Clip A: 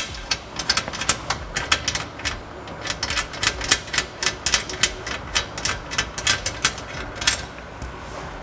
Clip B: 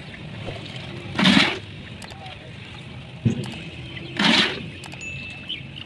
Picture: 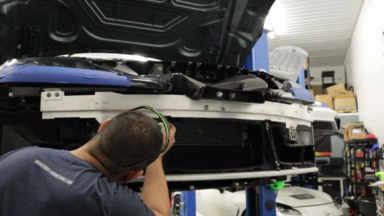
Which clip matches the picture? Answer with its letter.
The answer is A